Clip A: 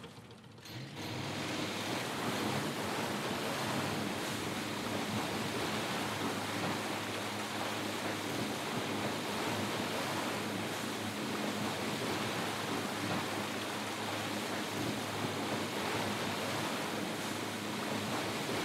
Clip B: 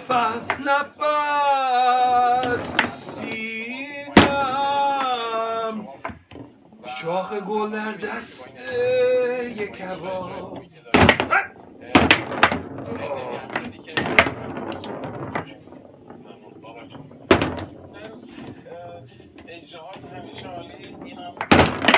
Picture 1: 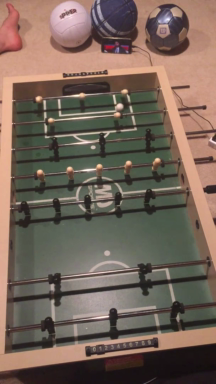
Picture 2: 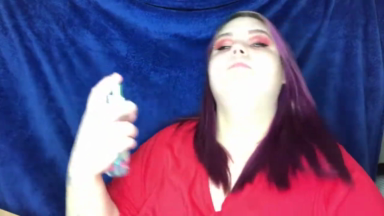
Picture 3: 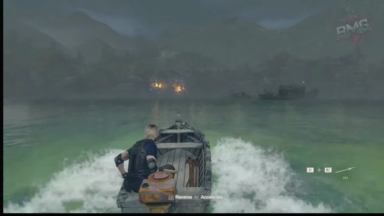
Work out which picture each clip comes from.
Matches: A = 3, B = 1